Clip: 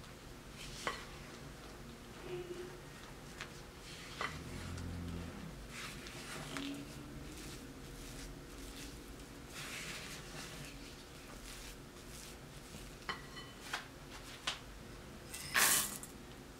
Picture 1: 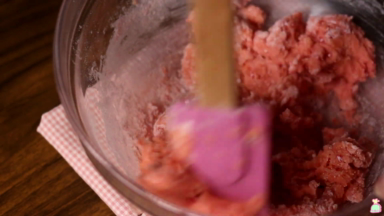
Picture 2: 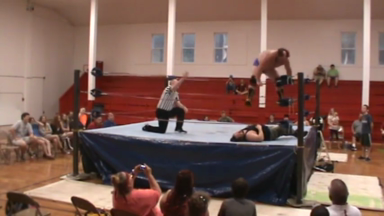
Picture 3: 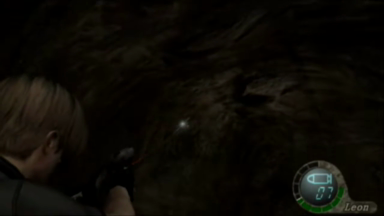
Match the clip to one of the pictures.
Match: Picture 1